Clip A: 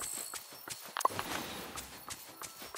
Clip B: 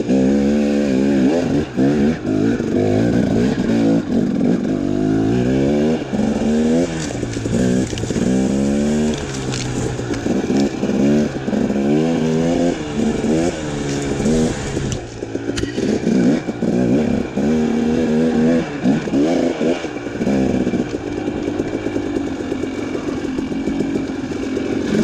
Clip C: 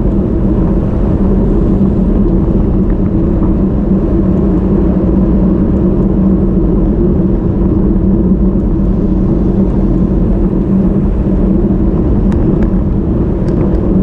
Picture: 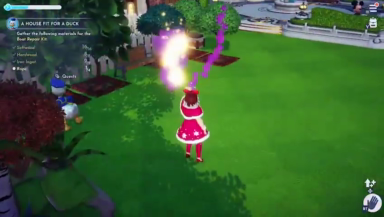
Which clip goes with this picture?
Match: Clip A